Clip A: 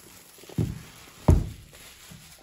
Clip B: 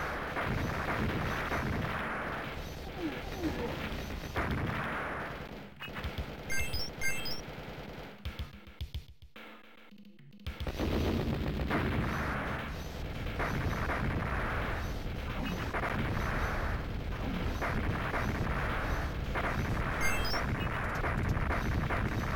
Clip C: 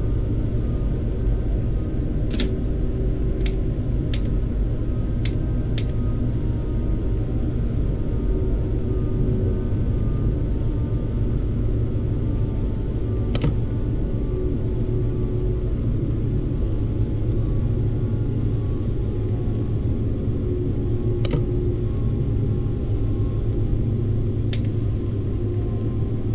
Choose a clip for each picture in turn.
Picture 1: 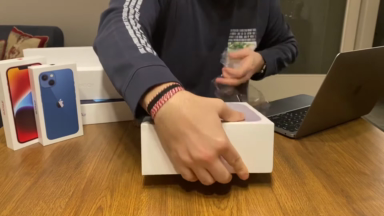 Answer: A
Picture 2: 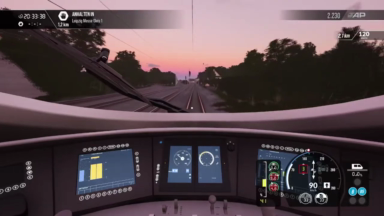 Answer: C